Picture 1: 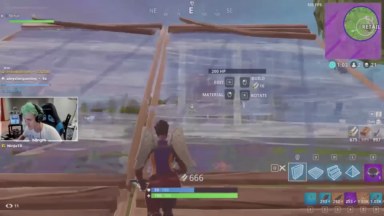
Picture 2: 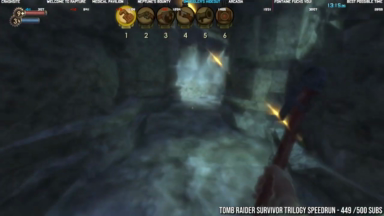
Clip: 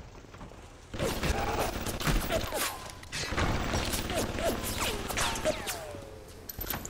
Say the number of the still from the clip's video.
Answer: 2